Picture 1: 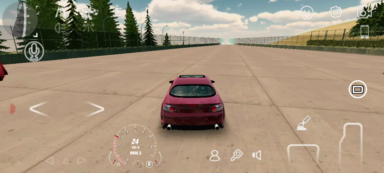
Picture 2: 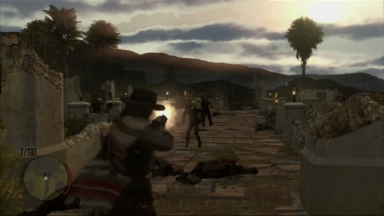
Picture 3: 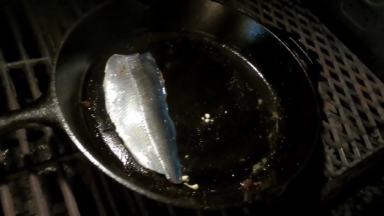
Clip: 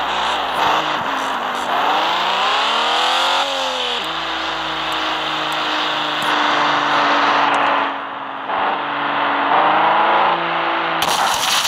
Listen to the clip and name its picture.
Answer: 1